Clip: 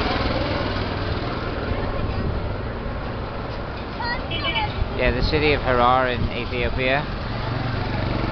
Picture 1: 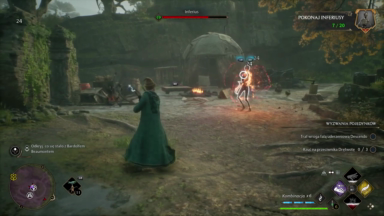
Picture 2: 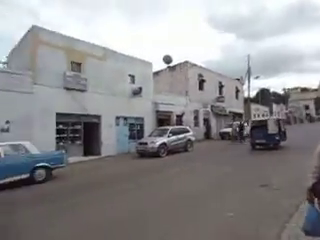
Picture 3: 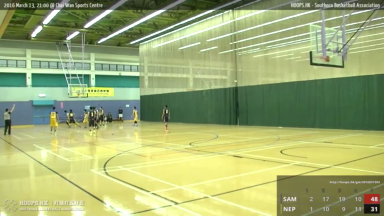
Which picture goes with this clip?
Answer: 2